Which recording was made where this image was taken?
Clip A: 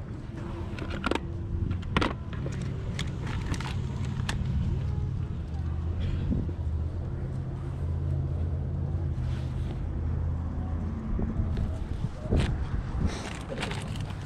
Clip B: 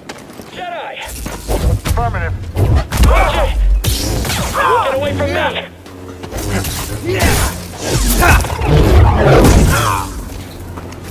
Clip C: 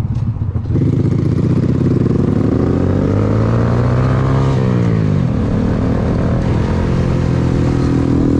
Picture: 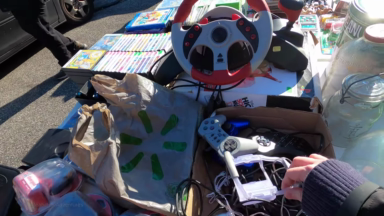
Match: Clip A